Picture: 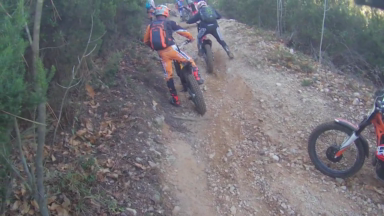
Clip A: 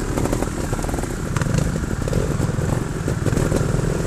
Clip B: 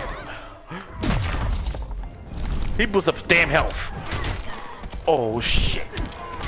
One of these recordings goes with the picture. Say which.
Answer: A